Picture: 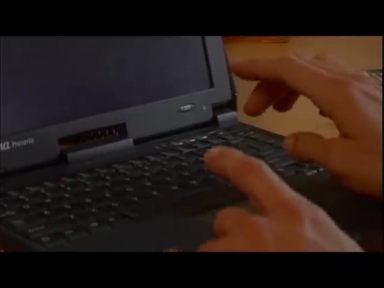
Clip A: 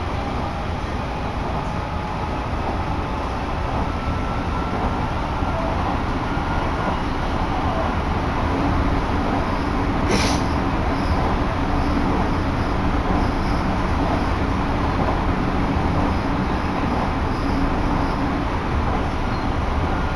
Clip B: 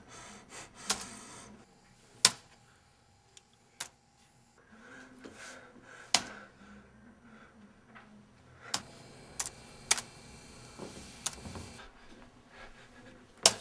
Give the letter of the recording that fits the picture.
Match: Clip B